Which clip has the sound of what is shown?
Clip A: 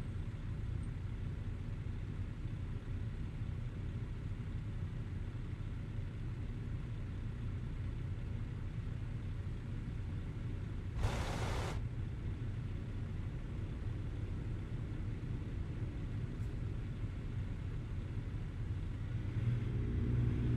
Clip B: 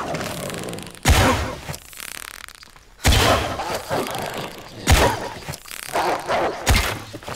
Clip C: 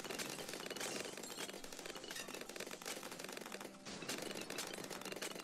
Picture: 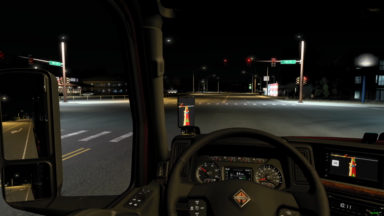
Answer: A